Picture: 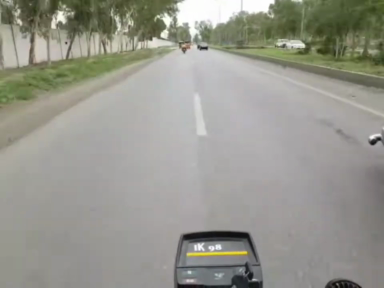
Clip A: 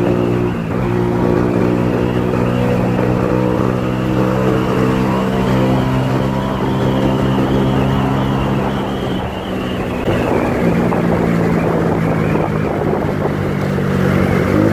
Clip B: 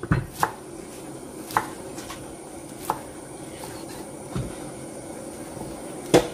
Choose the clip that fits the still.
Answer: A